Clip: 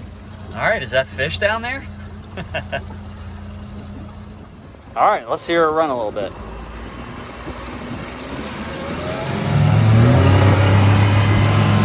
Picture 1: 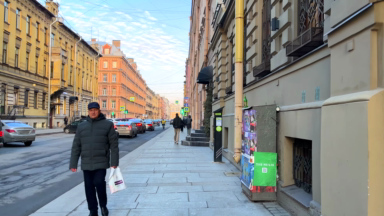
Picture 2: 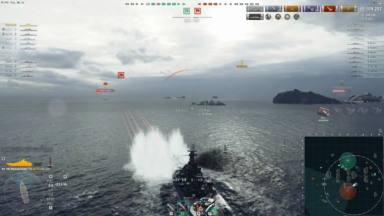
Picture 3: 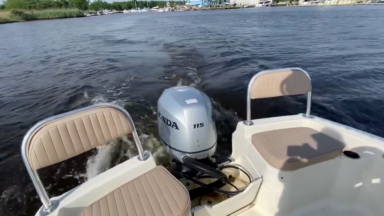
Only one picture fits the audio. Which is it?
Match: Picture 3